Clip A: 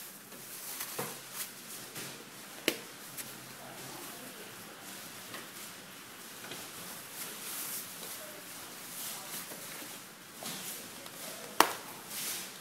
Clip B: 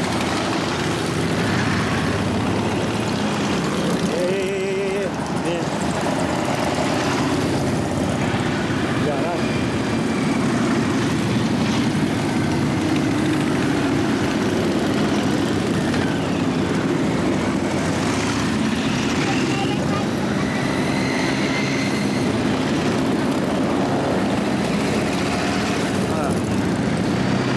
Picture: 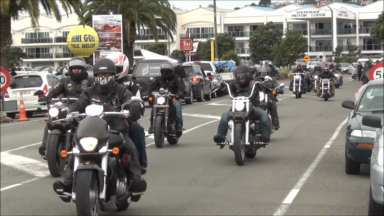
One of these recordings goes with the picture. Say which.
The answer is B